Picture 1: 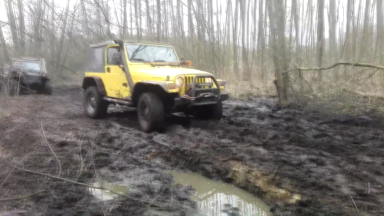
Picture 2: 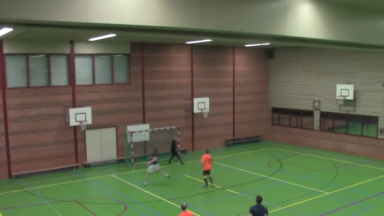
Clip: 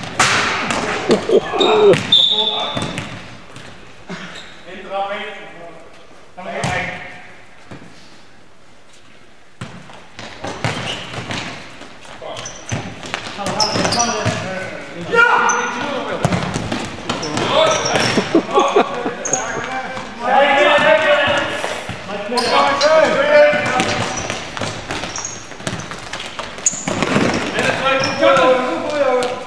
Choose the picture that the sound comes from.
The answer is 2